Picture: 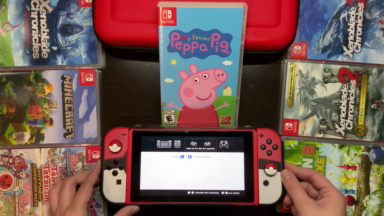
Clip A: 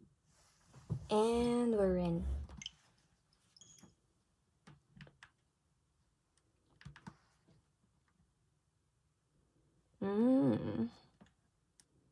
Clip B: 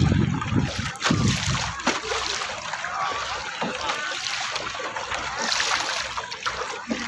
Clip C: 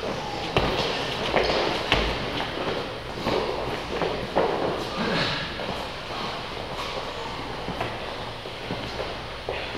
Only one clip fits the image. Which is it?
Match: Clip A